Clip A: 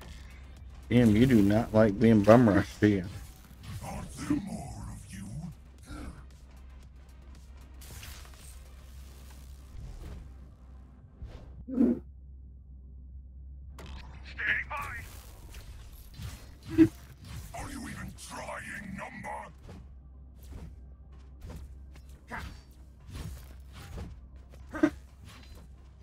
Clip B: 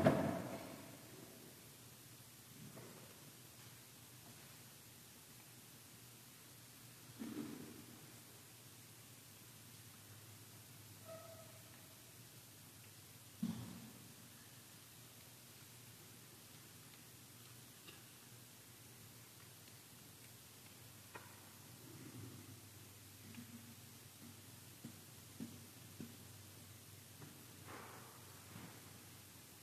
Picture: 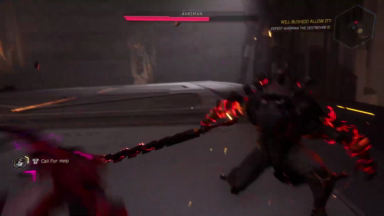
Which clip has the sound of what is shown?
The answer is A